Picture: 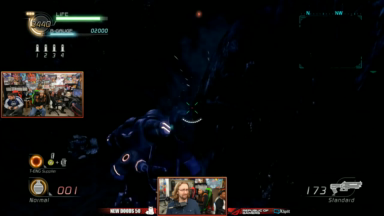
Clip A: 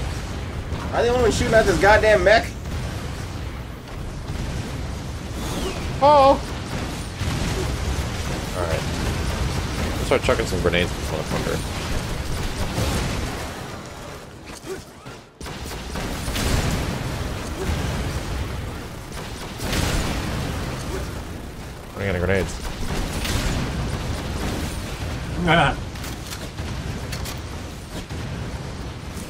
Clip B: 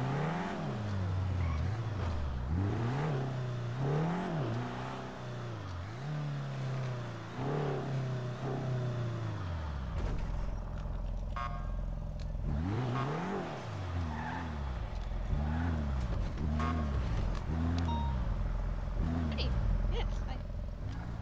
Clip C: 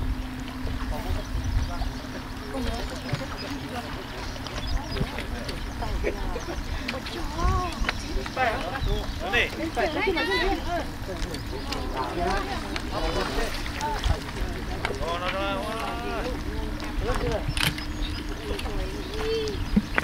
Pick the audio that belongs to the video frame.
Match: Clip A